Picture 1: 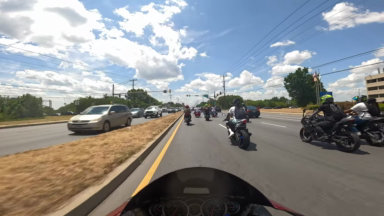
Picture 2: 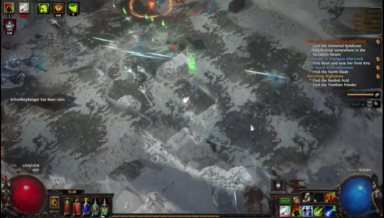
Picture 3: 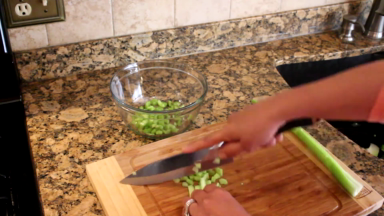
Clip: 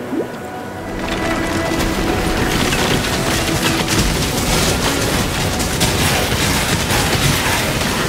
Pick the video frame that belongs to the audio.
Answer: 2